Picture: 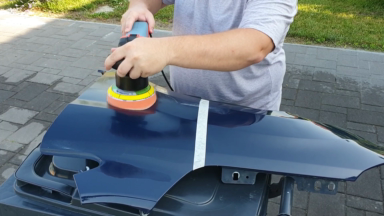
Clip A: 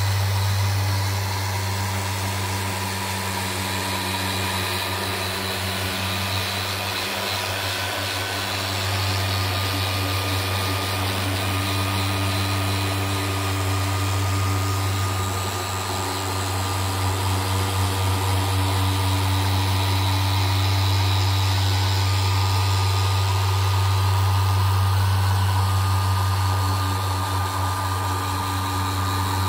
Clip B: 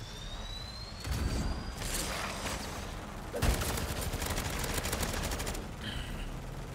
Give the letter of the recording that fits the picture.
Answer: A